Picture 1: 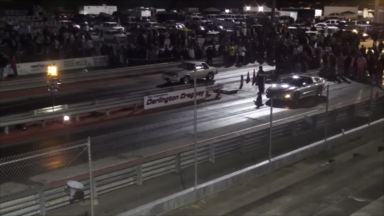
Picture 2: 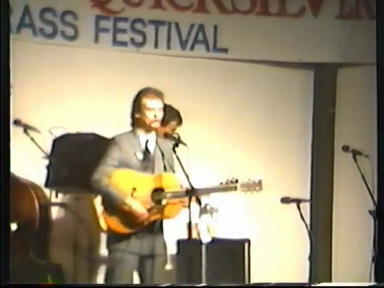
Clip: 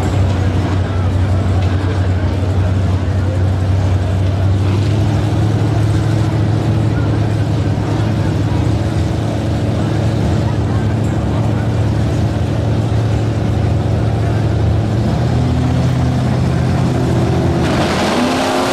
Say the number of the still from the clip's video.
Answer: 1